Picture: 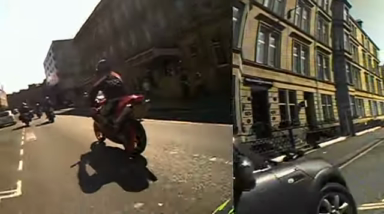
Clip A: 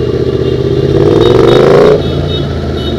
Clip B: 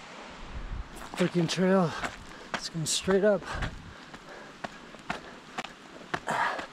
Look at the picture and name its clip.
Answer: A